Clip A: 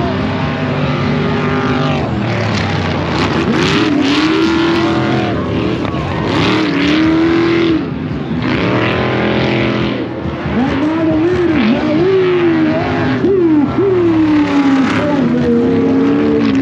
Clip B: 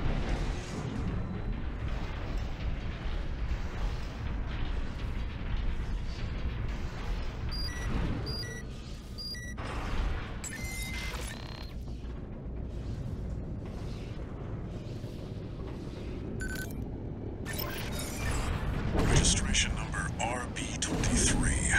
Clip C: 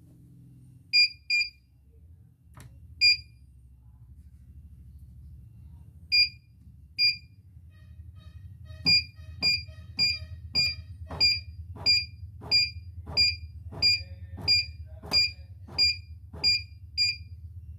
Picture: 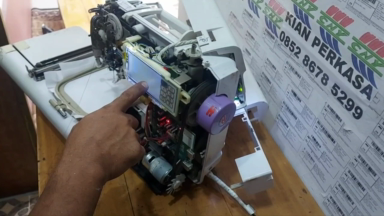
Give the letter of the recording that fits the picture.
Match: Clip C